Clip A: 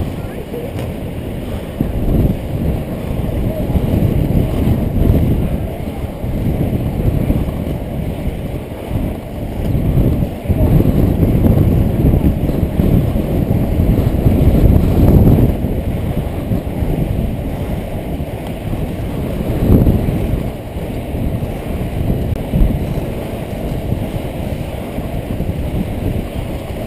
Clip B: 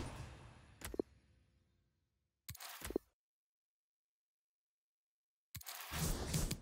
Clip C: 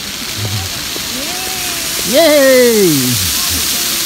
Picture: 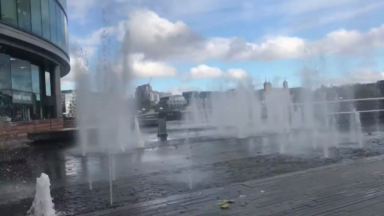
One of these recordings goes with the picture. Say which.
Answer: C